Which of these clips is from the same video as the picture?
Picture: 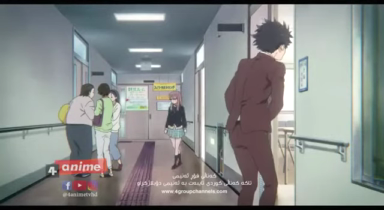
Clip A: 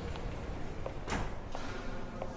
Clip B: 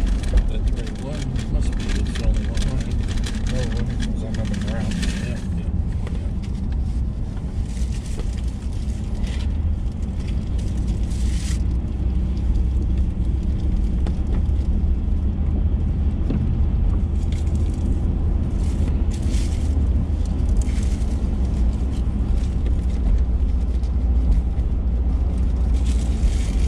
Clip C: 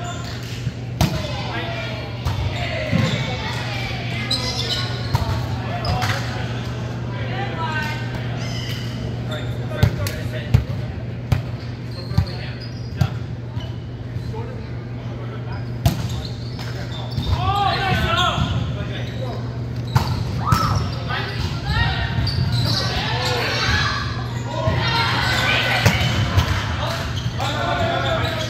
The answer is A